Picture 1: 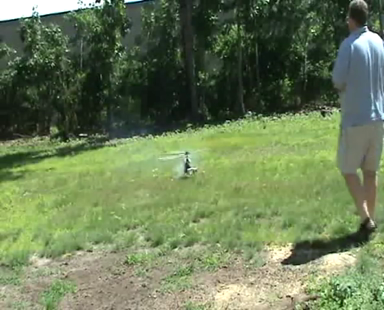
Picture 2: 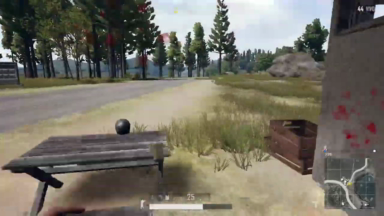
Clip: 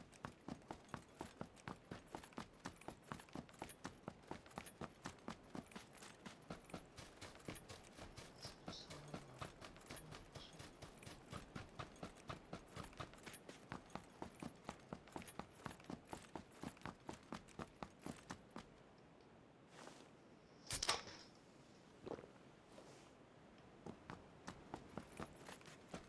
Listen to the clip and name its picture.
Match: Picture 2